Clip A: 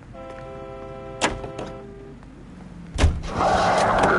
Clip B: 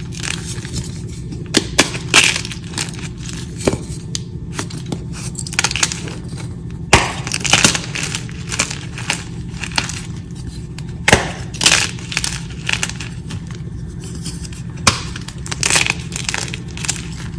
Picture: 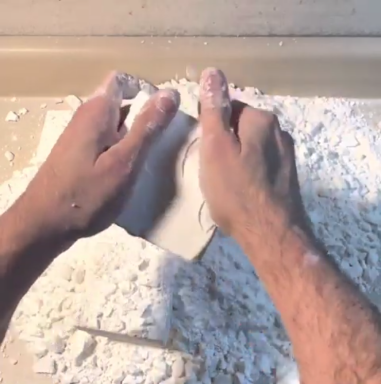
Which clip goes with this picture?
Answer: B